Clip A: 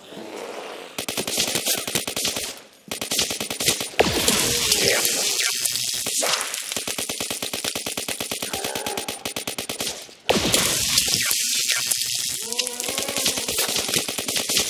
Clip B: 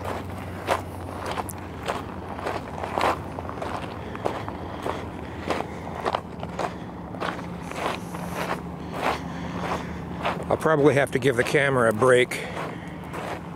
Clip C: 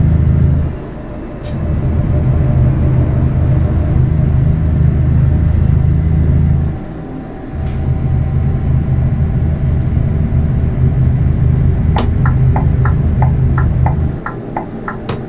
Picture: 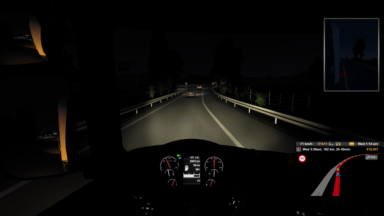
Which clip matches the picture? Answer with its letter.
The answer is C